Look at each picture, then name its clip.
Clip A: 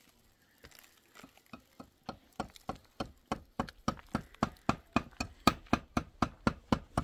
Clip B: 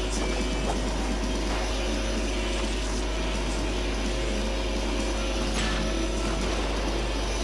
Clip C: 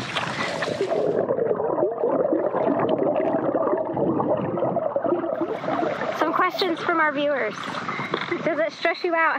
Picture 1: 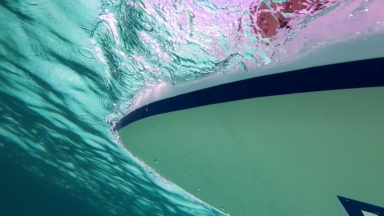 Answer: C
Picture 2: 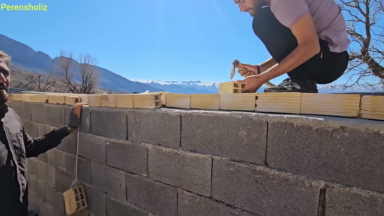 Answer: A